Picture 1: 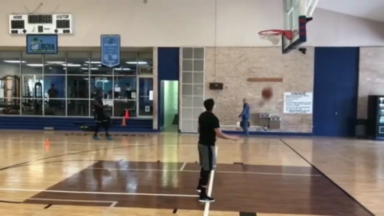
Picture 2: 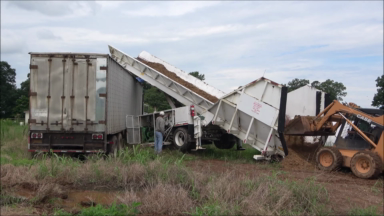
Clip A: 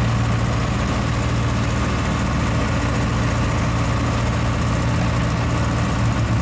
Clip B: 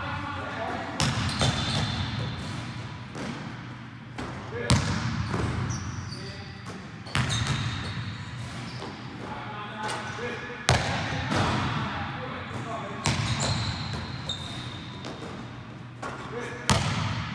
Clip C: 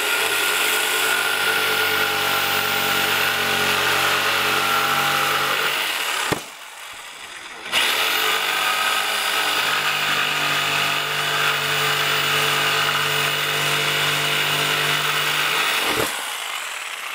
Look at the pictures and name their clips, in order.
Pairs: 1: B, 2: A